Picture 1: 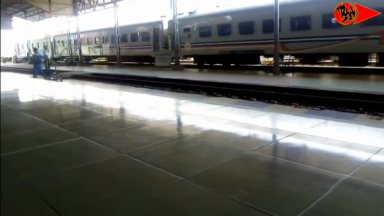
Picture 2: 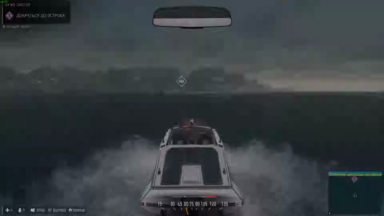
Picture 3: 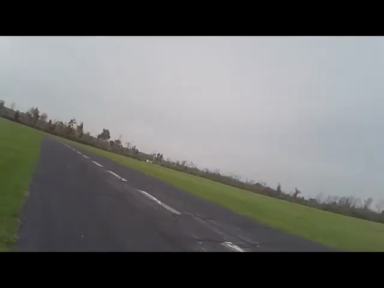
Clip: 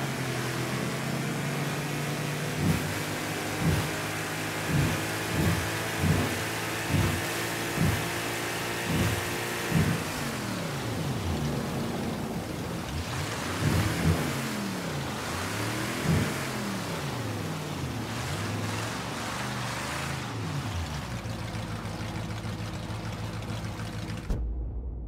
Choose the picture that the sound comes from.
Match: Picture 2